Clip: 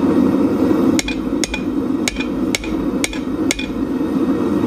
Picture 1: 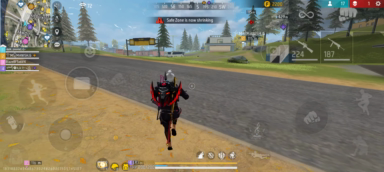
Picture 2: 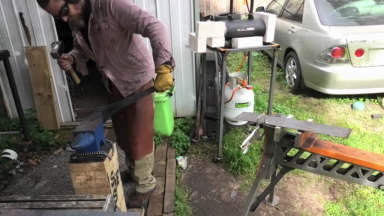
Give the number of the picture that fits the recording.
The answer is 2